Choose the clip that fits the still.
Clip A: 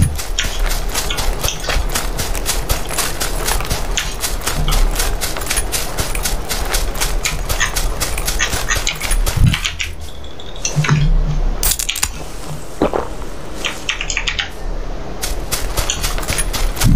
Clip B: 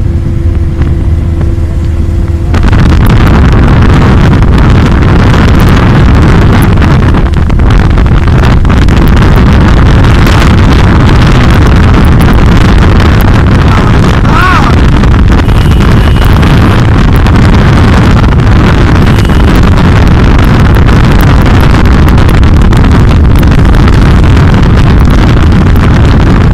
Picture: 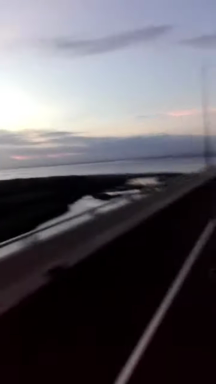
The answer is B